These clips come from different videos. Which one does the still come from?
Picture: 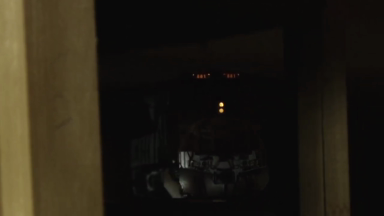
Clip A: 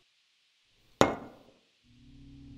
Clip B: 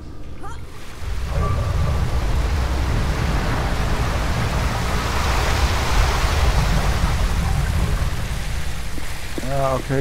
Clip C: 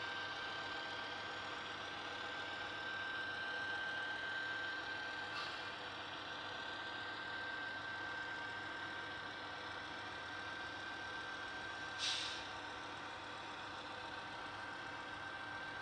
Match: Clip C